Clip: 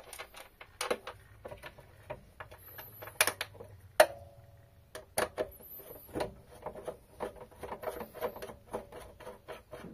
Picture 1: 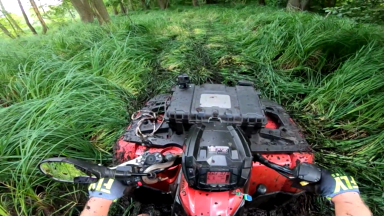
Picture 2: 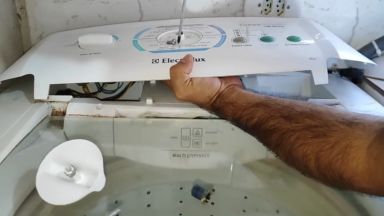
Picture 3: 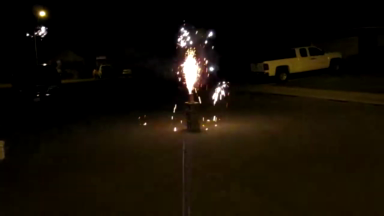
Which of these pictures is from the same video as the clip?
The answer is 2